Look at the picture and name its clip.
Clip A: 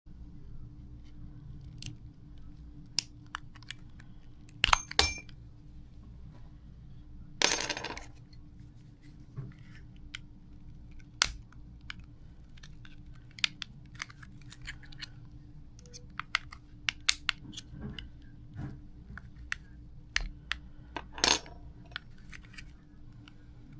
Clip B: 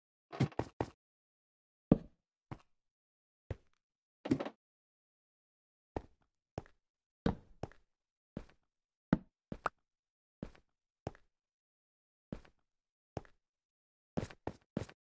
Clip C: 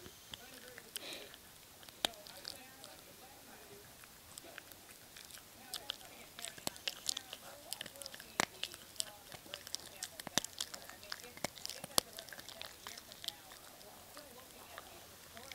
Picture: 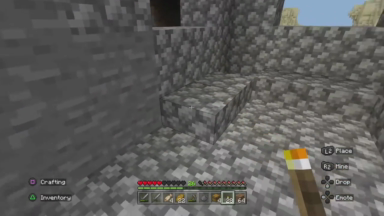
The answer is B